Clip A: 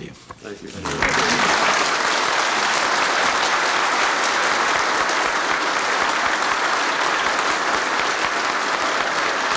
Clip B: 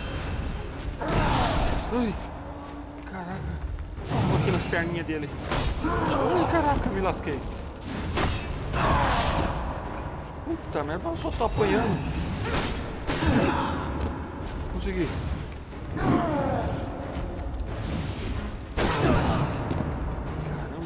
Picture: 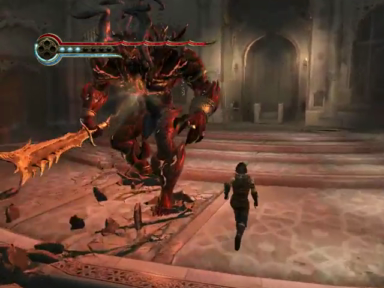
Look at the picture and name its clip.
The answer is B